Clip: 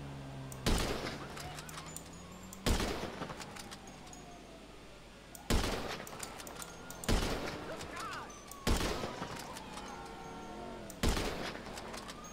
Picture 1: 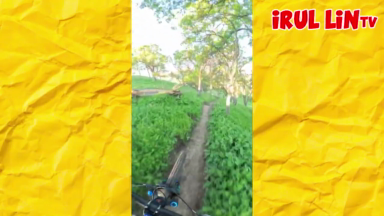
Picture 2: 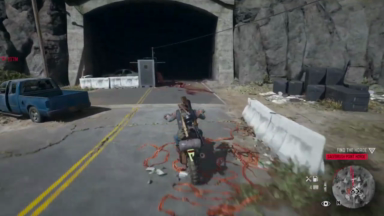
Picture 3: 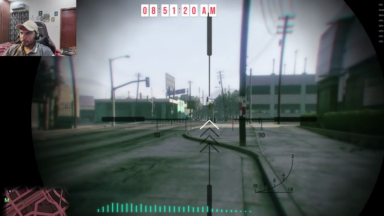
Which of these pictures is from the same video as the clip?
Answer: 3